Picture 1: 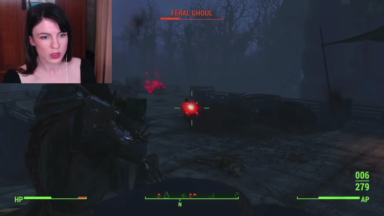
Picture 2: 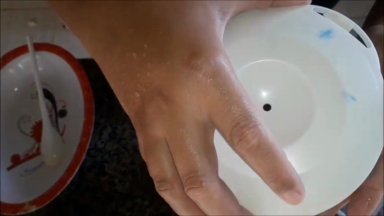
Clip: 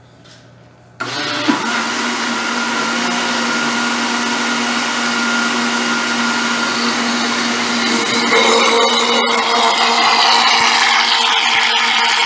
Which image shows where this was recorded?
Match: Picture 2